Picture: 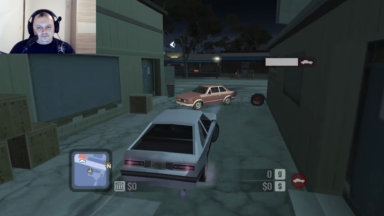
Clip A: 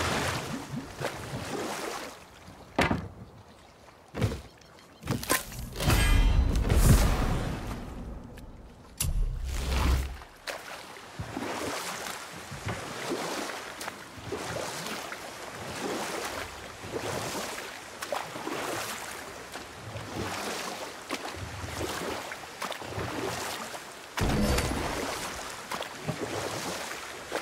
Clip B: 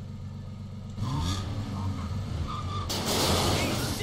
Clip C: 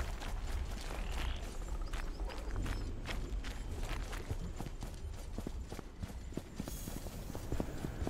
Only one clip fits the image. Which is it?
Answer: B